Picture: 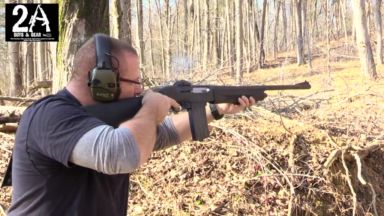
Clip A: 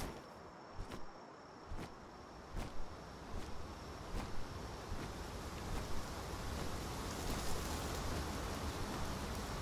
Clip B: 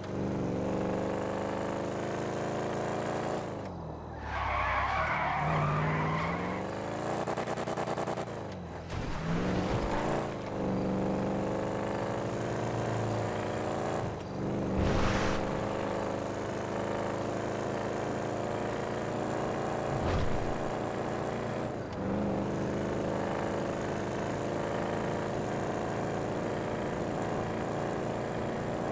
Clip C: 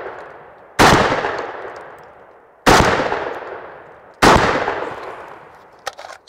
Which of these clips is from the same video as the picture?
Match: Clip C